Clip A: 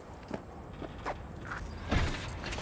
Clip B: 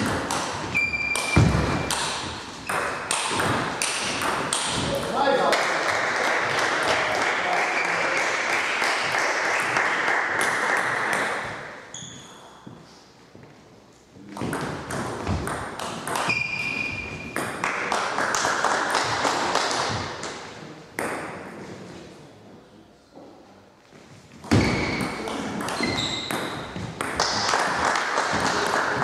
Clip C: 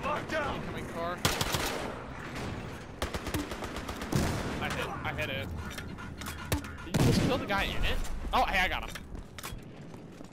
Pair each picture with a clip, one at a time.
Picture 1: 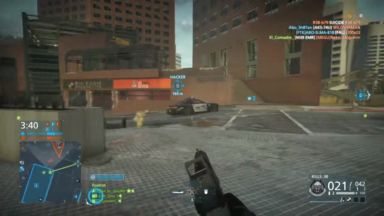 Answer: C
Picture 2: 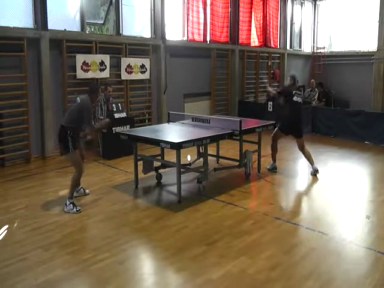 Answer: B